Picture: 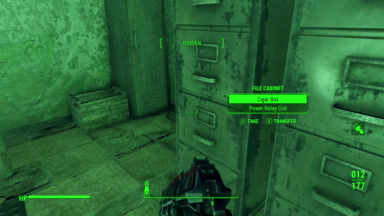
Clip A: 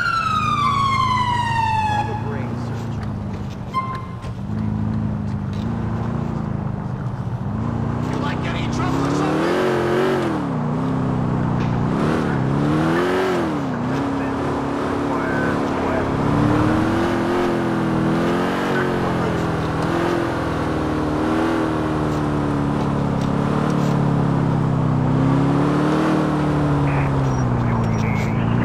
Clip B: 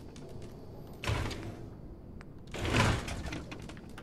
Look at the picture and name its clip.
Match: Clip B